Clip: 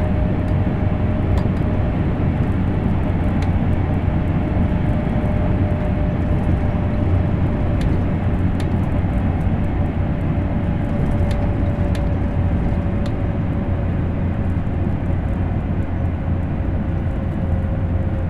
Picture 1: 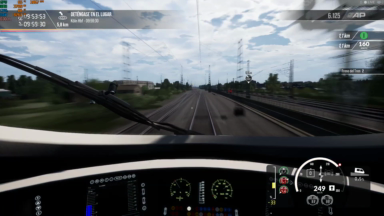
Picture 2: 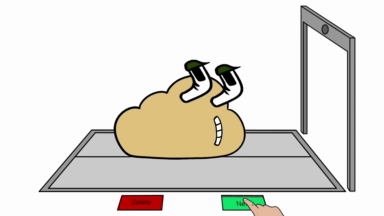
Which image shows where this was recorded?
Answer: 1